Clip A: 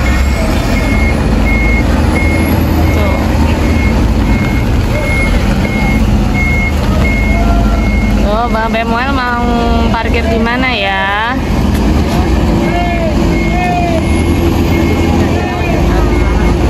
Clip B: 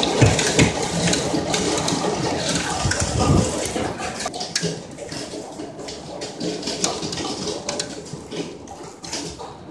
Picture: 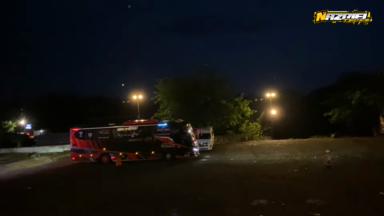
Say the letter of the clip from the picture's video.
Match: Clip A